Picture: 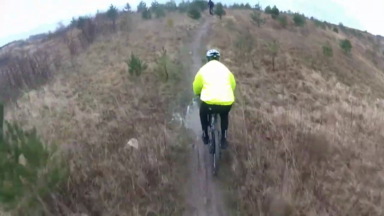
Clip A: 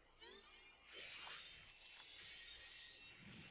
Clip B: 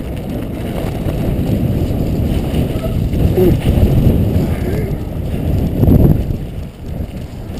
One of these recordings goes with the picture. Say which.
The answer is B